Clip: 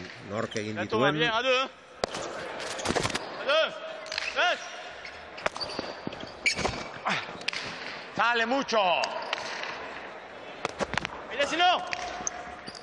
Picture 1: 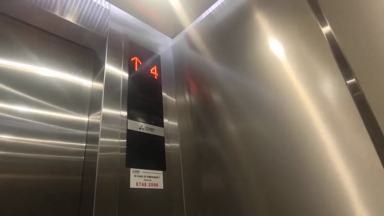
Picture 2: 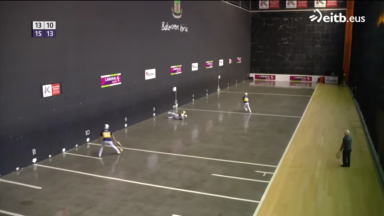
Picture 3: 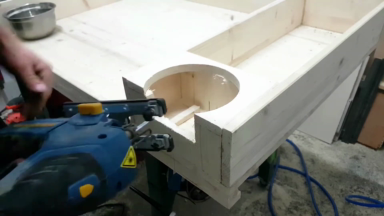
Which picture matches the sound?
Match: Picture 2